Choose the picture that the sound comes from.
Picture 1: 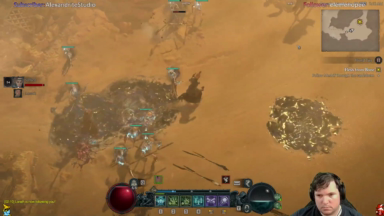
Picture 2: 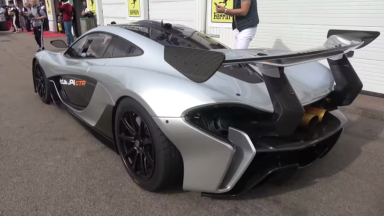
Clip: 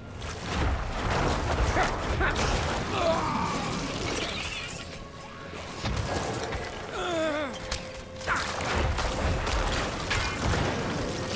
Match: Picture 1